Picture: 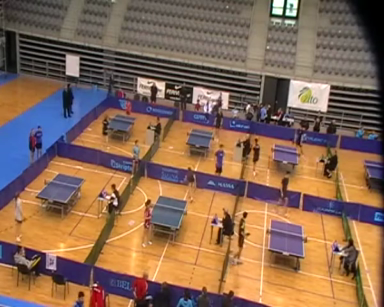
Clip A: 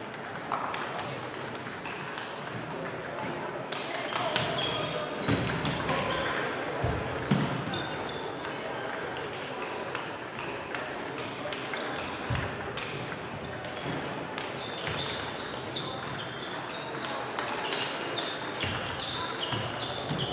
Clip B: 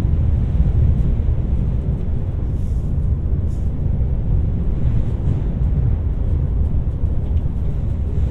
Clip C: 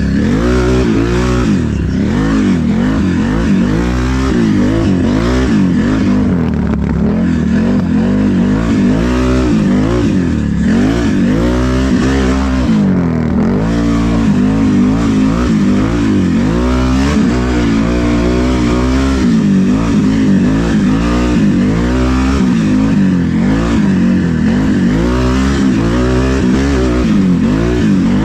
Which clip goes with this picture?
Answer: A